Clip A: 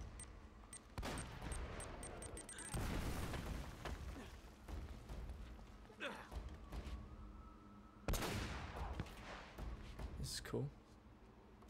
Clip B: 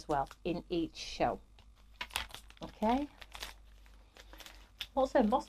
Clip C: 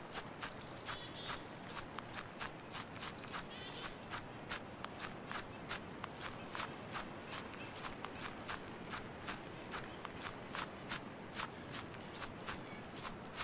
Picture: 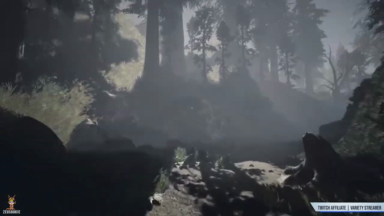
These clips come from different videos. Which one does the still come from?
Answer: C